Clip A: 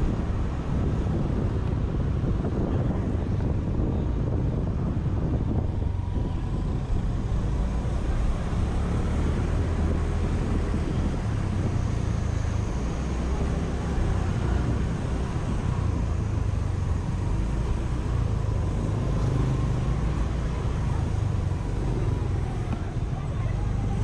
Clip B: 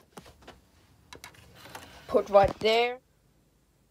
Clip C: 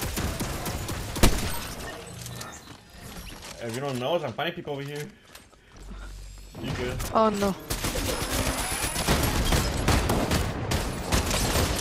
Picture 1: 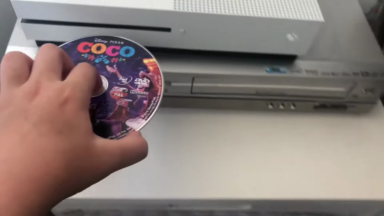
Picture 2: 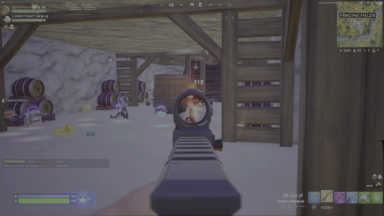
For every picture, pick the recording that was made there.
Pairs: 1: B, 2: C